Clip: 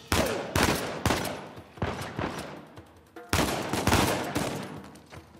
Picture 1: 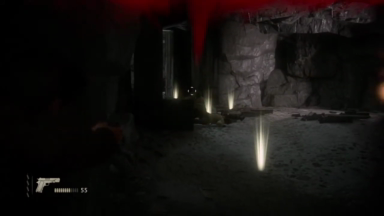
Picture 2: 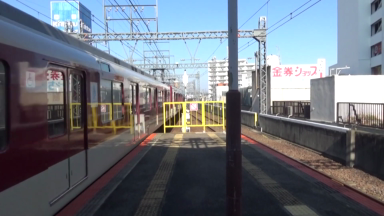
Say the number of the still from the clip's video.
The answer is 1